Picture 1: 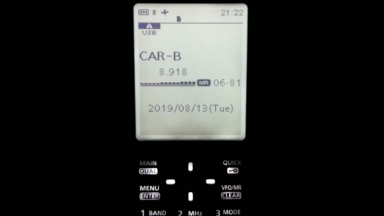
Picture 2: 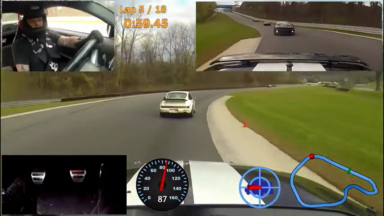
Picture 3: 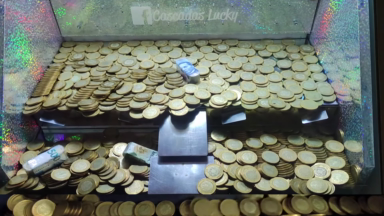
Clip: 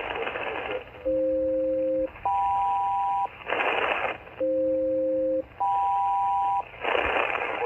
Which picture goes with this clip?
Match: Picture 1